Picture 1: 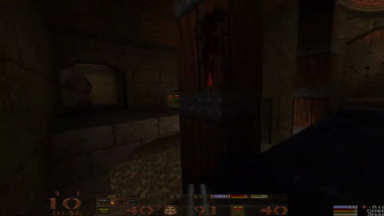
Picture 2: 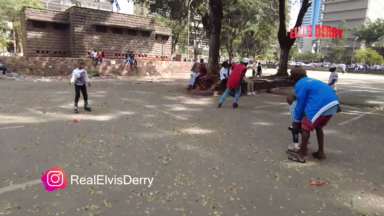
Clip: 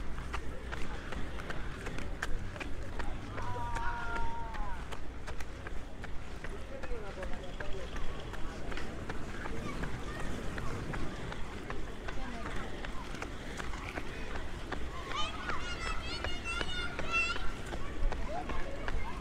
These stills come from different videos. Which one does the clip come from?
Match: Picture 2